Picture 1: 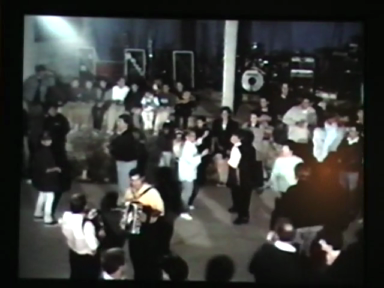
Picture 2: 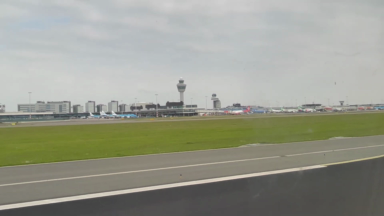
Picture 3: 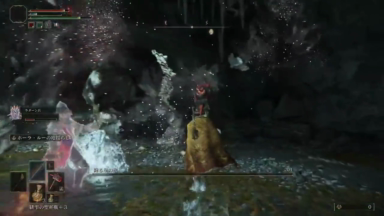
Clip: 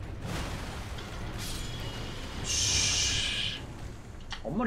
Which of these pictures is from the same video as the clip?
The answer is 3